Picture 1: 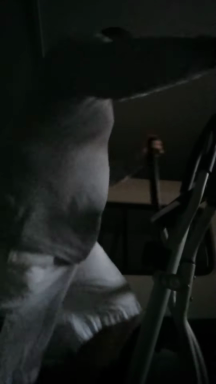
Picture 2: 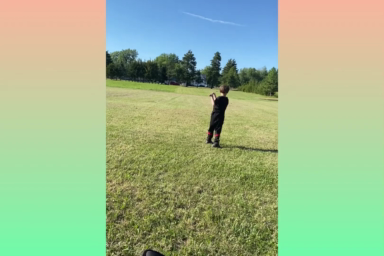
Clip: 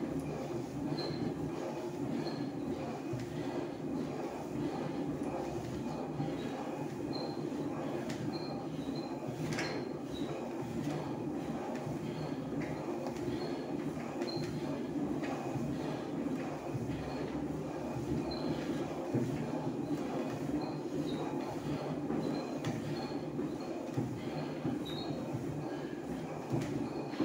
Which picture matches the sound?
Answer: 1